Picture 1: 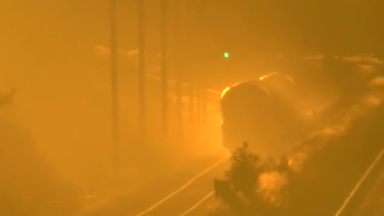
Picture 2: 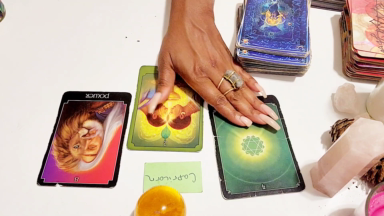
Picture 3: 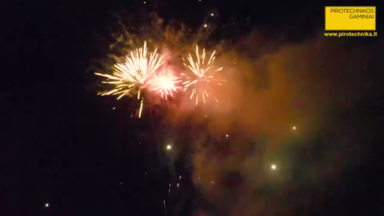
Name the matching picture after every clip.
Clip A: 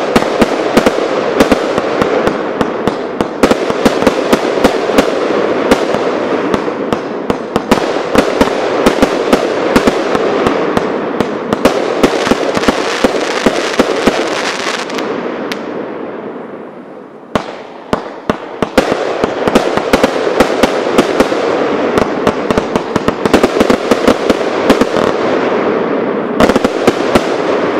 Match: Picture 3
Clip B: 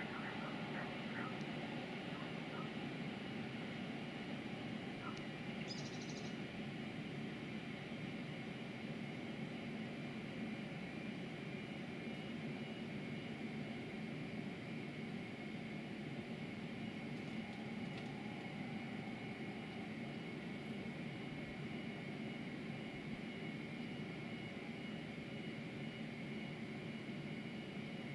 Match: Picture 1